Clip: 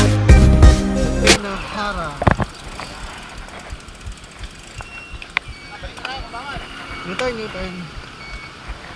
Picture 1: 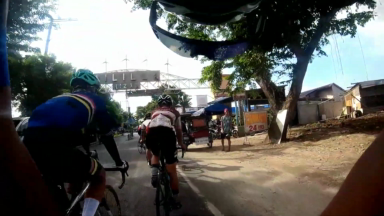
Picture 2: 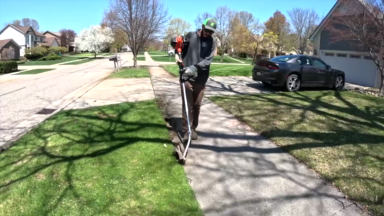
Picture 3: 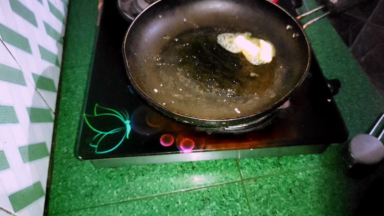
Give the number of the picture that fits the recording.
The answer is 1